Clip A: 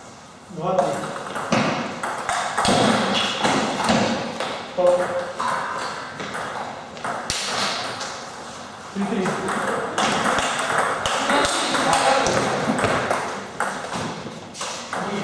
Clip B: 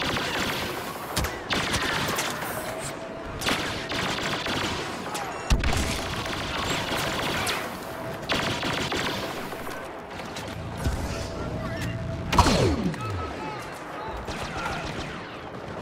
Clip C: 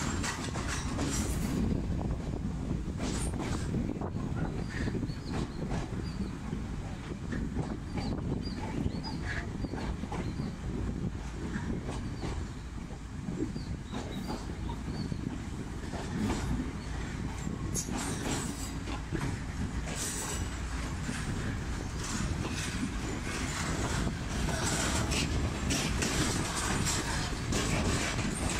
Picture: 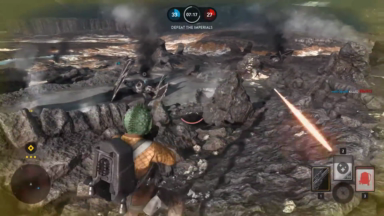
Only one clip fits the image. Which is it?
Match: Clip B